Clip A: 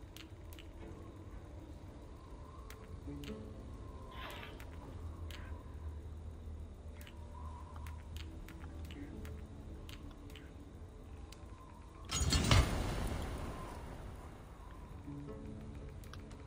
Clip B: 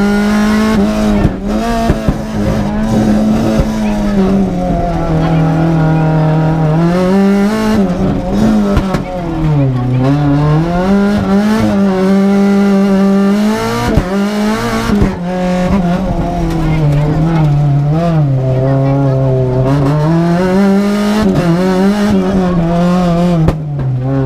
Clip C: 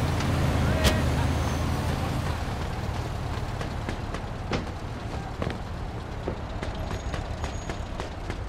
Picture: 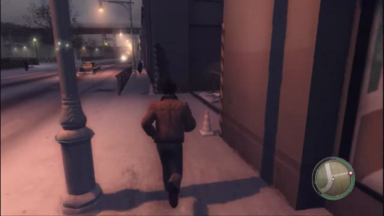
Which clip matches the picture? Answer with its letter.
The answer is C